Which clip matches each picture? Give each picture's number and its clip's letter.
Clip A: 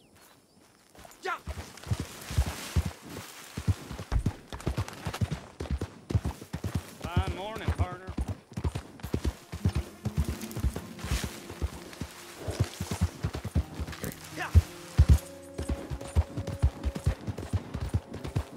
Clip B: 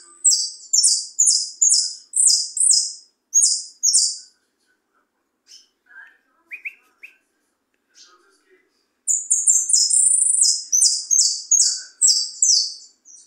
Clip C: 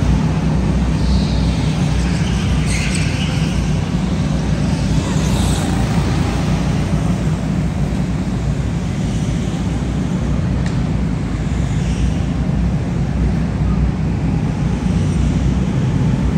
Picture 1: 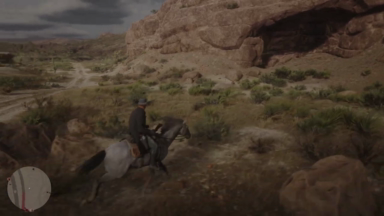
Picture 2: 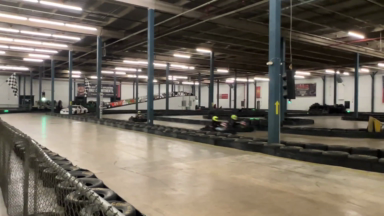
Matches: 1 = A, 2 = C